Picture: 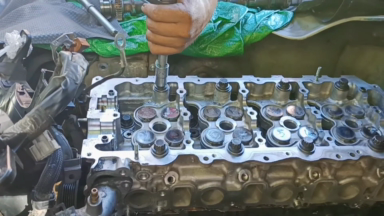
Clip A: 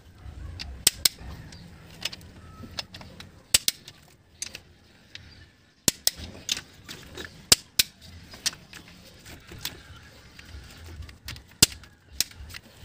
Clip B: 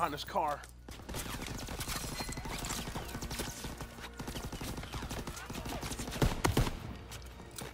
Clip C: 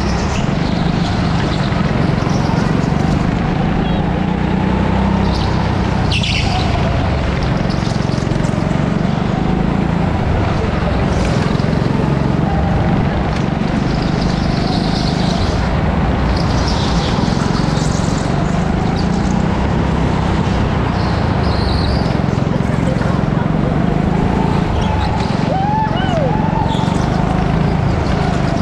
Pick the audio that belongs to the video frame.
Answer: A